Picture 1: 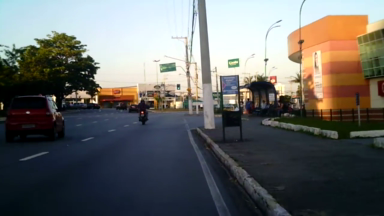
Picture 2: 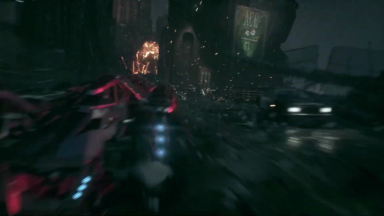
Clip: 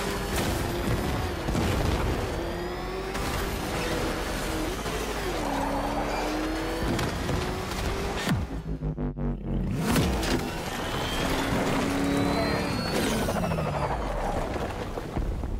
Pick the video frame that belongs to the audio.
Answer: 2